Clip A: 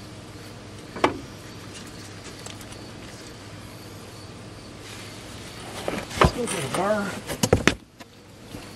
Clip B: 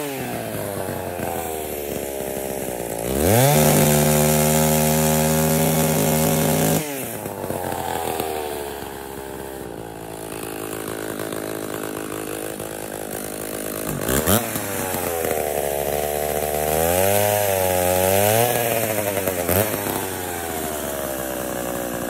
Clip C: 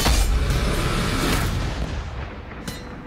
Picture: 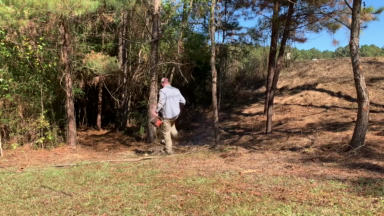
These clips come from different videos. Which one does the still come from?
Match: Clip B